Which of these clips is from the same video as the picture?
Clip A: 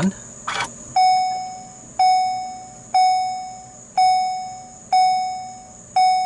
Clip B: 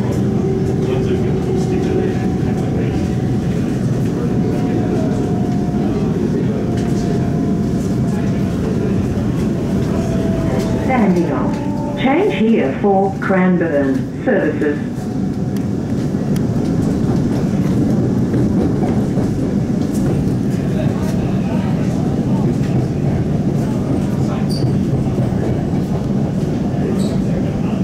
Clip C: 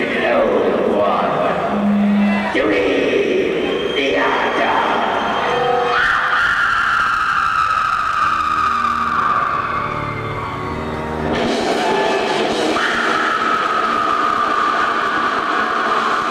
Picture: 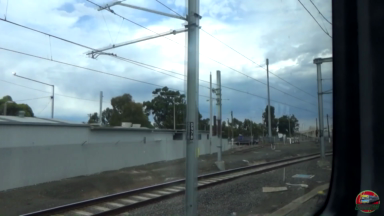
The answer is B